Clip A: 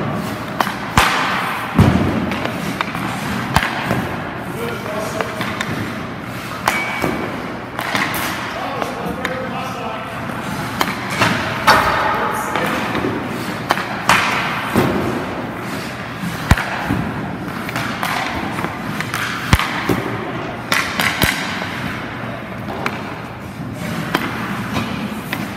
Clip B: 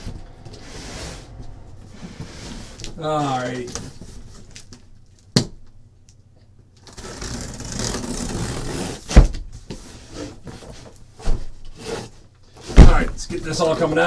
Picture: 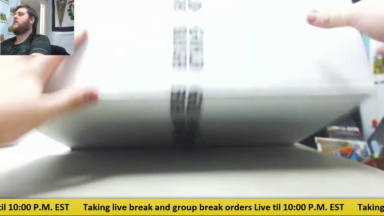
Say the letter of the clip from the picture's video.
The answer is B